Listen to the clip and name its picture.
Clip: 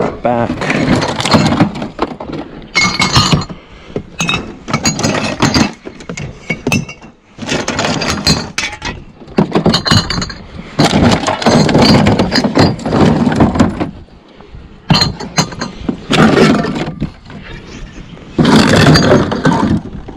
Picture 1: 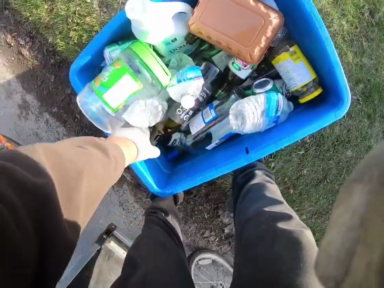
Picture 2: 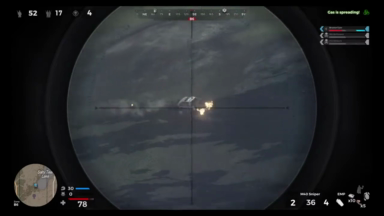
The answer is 1